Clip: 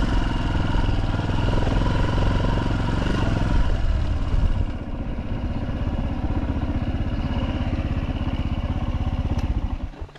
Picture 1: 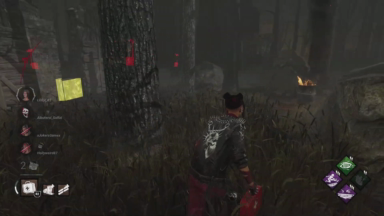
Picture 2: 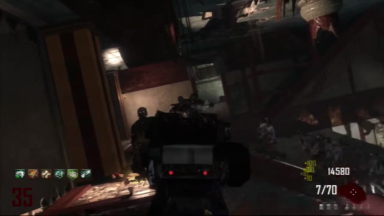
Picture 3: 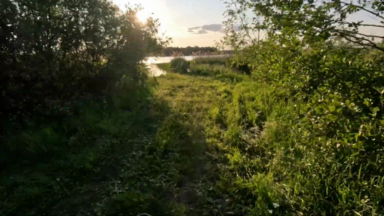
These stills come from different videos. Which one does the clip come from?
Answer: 3